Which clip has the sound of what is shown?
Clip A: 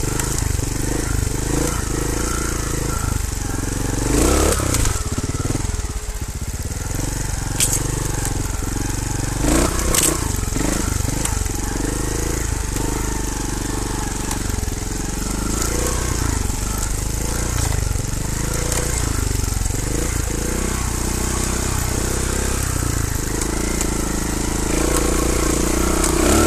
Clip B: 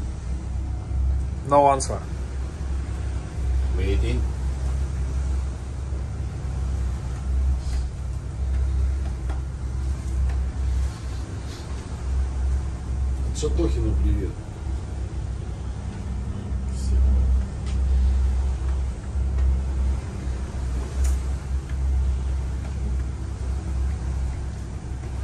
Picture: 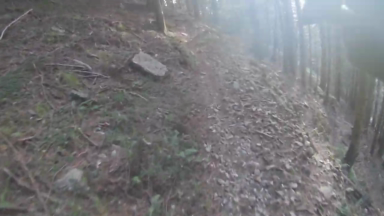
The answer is A